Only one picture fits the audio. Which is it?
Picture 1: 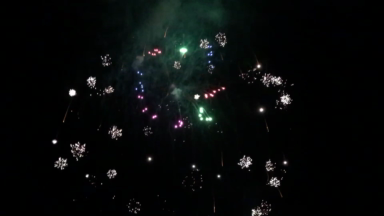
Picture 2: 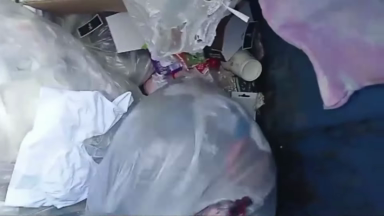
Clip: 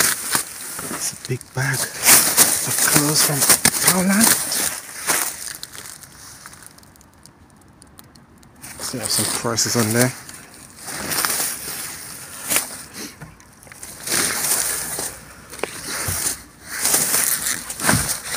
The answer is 2